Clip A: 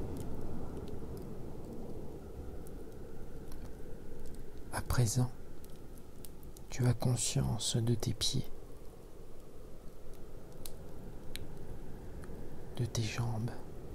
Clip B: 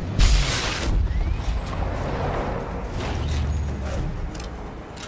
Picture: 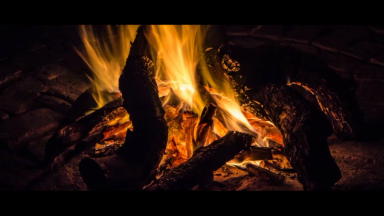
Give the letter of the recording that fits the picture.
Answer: A